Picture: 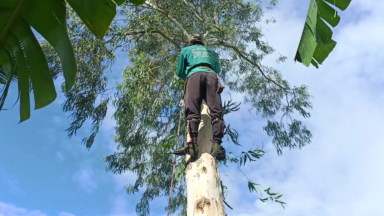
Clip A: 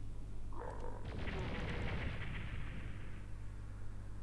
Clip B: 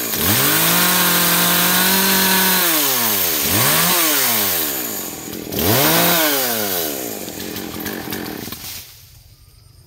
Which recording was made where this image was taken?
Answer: B